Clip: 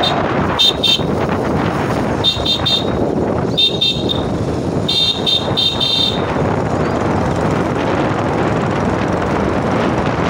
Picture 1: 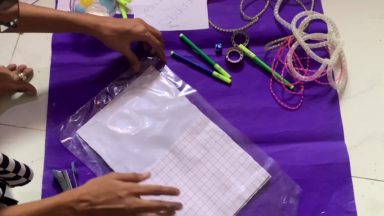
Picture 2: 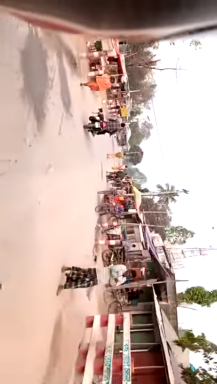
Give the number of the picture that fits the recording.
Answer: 2